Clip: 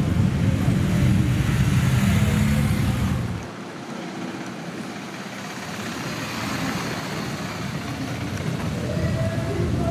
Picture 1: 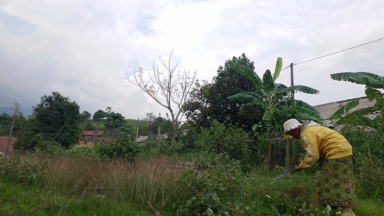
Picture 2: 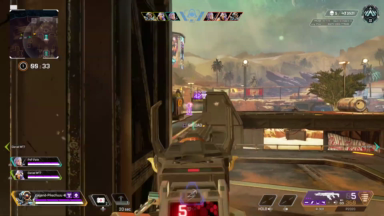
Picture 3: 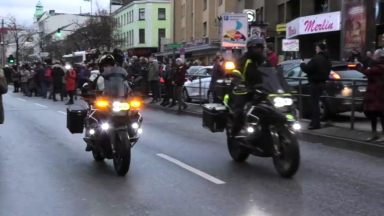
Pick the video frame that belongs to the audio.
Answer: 3